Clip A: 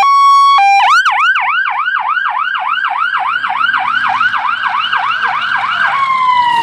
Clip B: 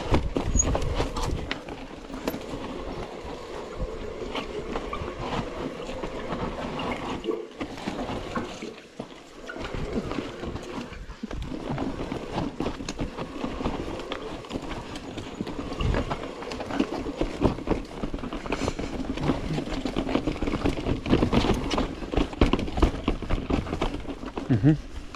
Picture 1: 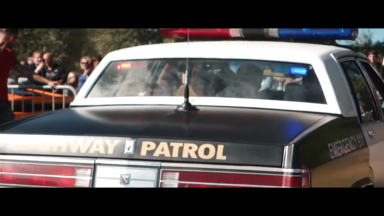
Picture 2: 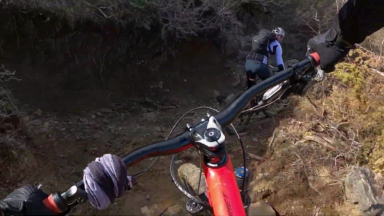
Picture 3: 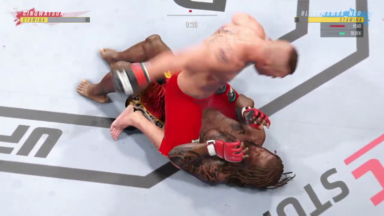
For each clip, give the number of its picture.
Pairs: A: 1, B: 2